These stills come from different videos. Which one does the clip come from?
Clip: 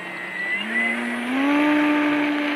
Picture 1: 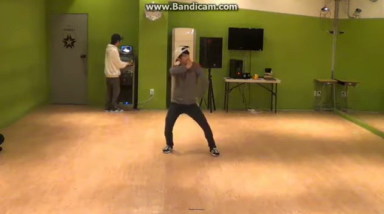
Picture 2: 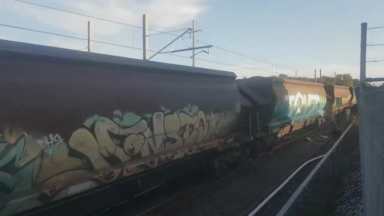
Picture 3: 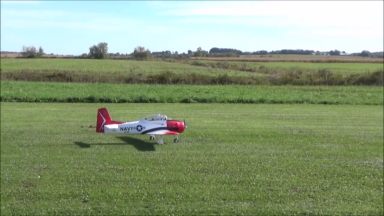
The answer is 3